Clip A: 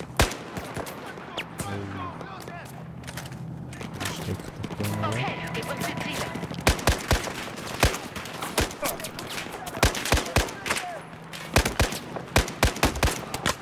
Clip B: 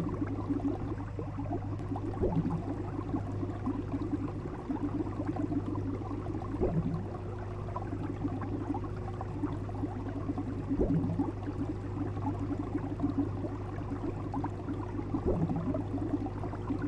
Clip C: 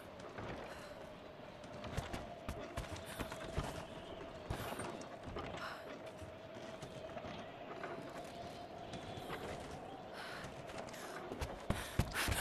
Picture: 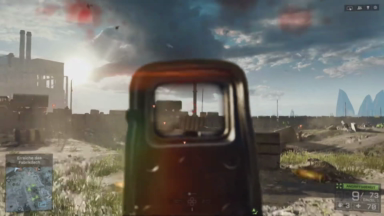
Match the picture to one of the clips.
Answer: A